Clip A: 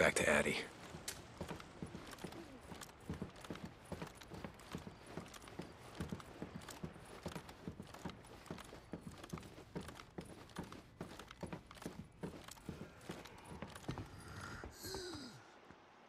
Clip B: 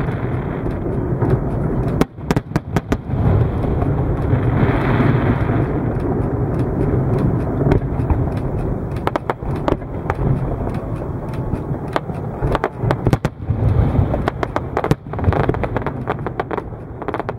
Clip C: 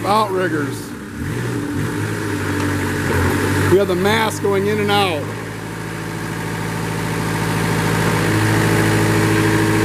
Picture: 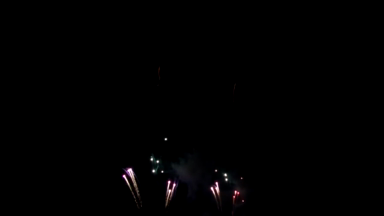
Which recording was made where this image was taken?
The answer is B